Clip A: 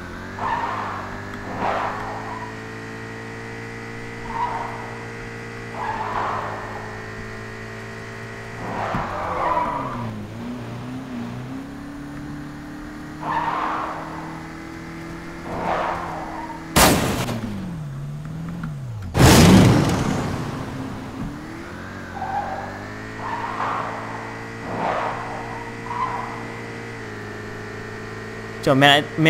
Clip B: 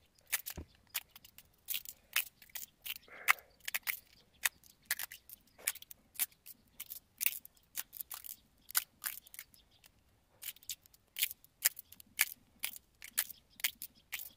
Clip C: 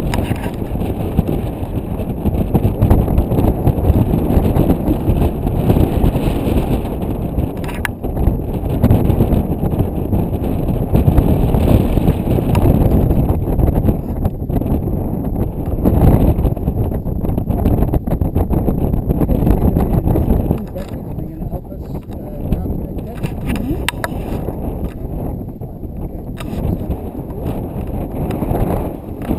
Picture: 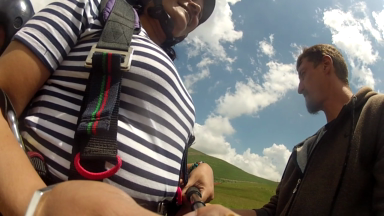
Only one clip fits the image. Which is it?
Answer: C